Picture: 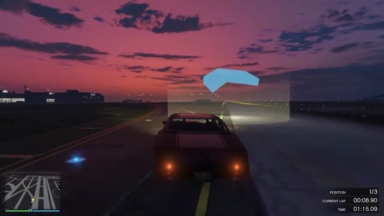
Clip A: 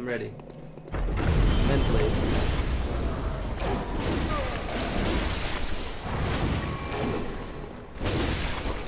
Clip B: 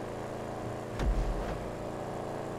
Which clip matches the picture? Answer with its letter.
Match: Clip B